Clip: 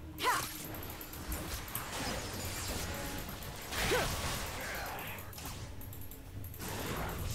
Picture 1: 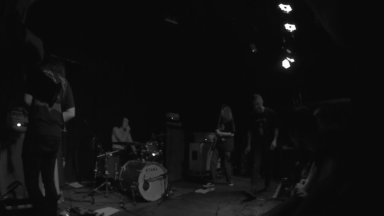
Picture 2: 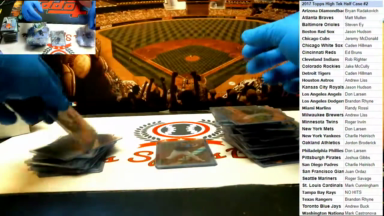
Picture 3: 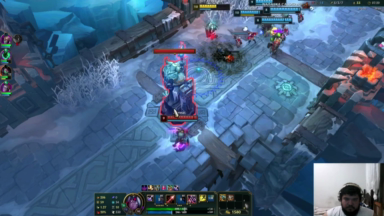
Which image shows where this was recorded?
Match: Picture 3